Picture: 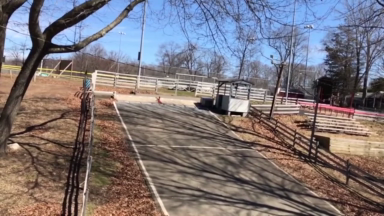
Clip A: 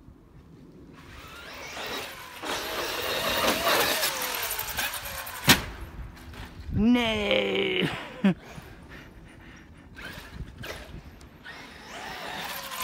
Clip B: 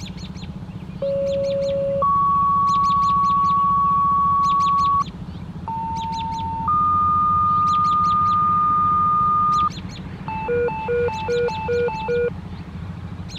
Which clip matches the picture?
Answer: A